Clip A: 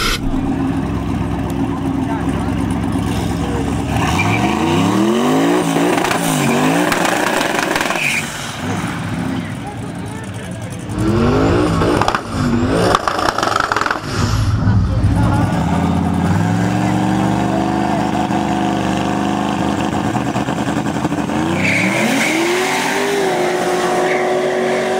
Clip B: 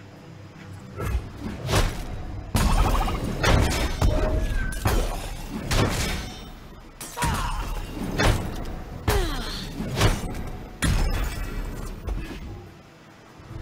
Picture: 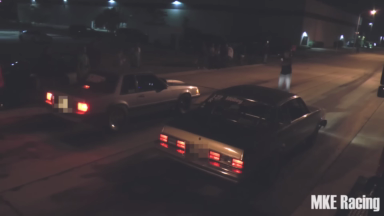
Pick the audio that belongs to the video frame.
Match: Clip A